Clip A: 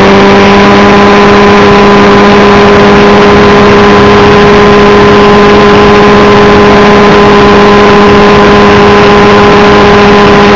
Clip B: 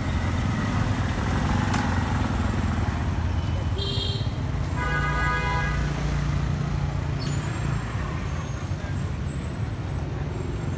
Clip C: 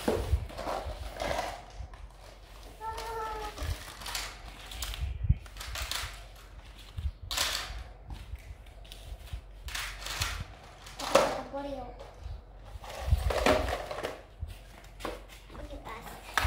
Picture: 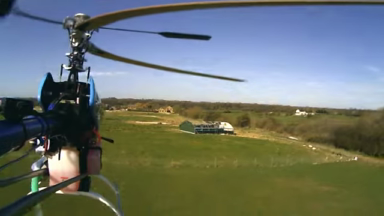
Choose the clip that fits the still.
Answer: A